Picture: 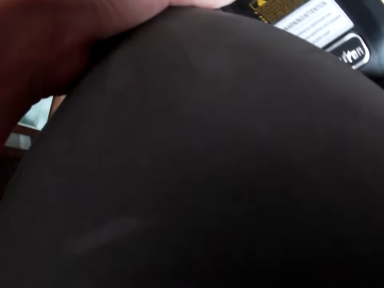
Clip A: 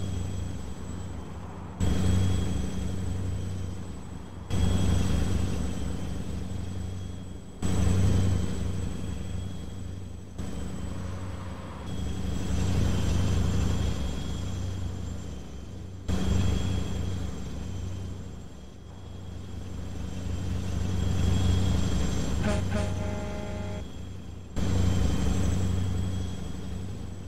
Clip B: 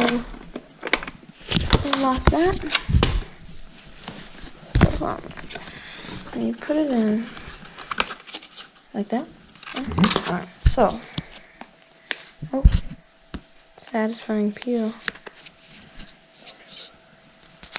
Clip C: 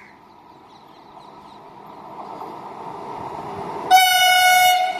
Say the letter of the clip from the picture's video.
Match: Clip B